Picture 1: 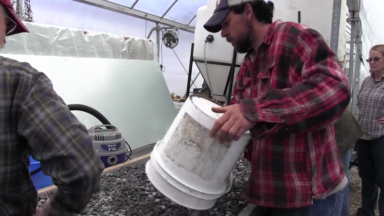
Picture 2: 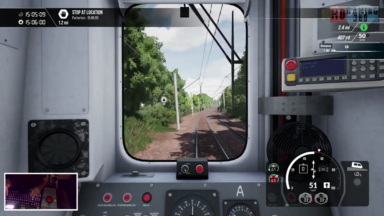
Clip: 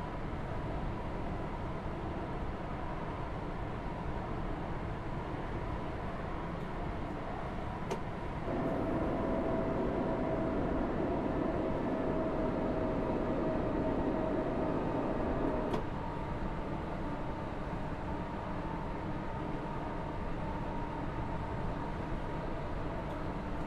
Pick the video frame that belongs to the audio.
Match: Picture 2